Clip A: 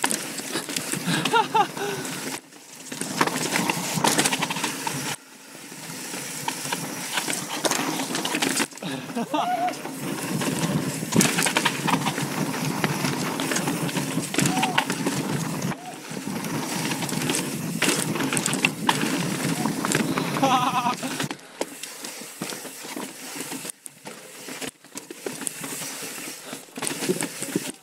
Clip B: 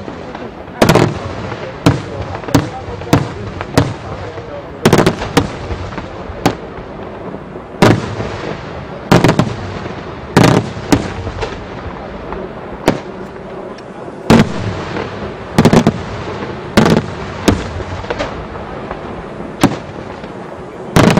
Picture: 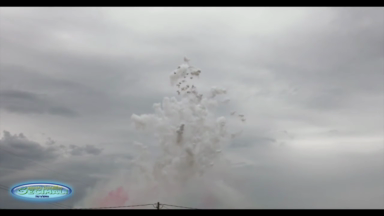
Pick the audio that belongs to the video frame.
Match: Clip B